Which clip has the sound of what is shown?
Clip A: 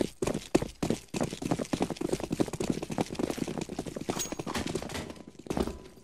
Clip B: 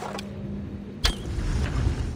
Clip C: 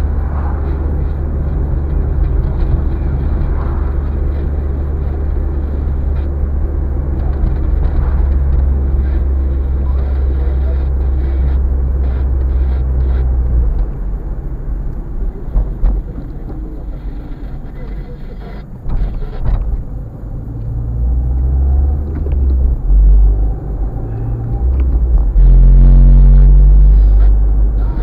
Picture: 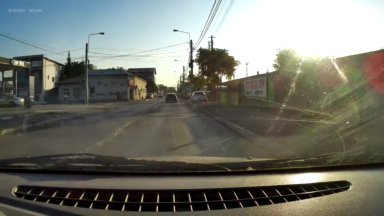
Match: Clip C